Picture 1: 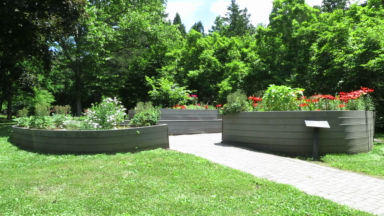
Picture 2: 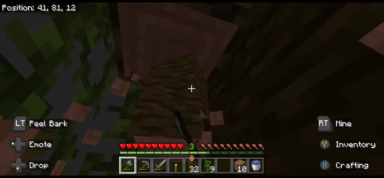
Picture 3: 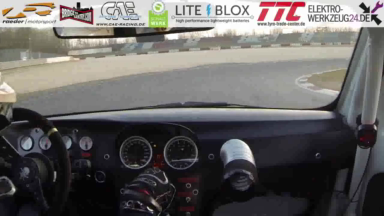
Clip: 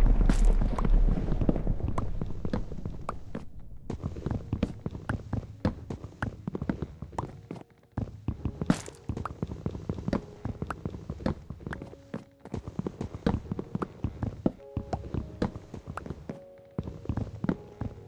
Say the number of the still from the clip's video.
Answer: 2